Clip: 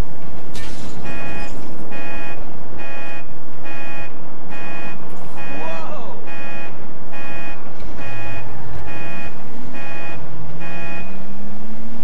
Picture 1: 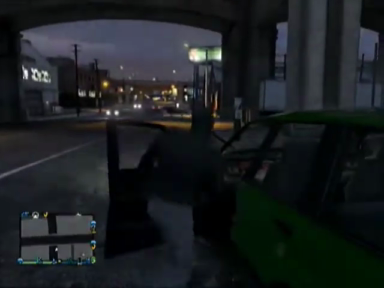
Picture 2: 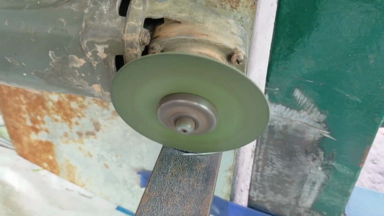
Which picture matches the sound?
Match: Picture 1